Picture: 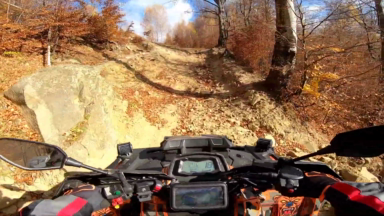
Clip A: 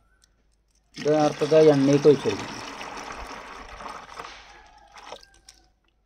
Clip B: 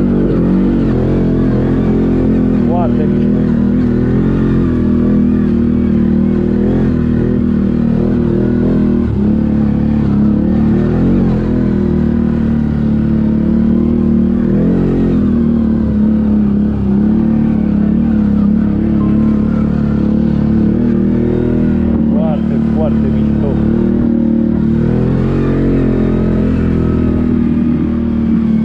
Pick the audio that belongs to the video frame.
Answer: B